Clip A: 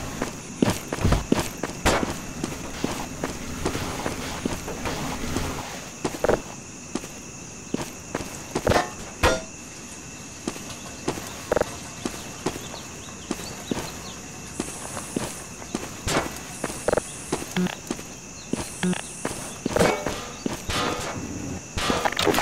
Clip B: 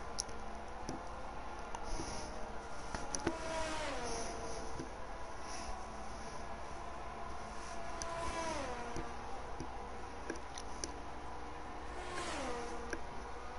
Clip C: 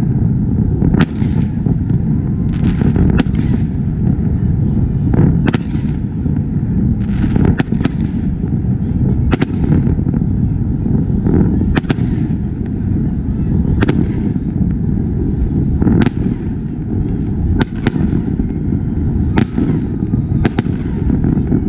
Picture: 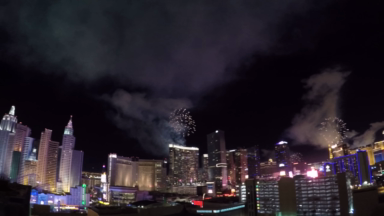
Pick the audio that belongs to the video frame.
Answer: C